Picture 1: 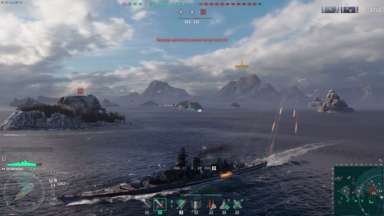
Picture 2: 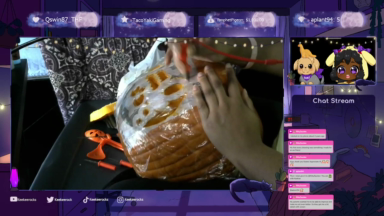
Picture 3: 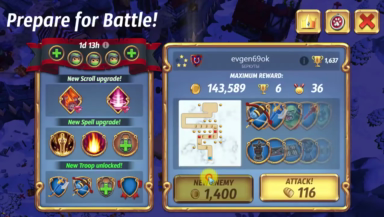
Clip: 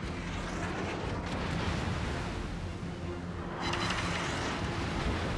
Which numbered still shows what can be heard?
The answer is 1